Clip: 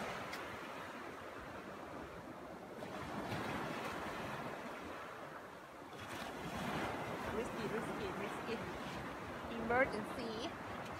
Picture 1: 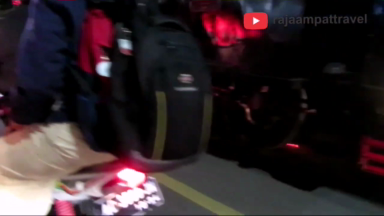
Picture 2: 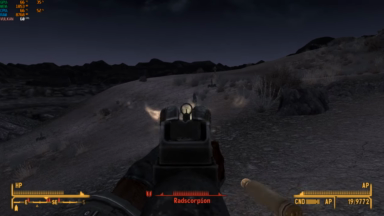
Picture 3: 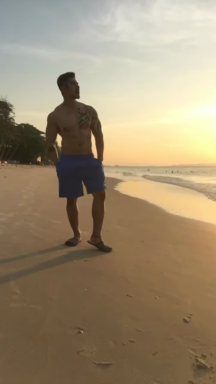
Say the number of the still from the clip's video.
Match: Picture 3